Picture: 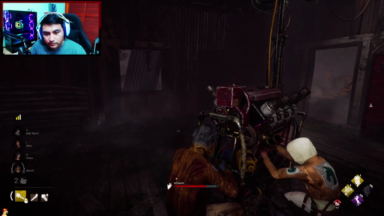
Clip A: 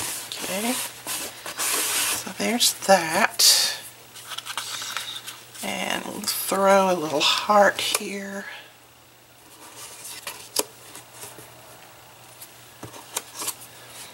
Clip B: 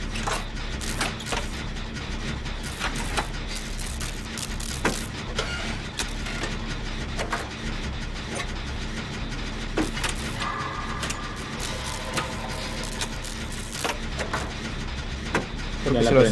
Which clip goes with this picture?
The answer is B